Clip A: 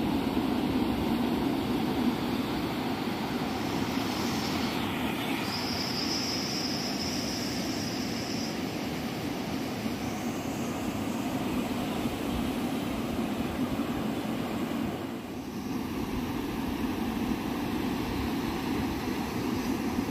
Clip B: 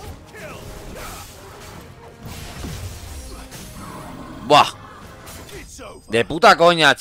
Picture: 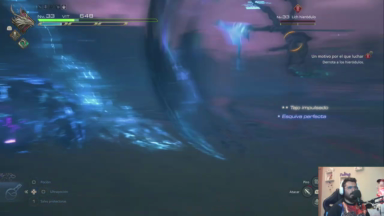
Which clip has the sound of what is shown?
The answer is B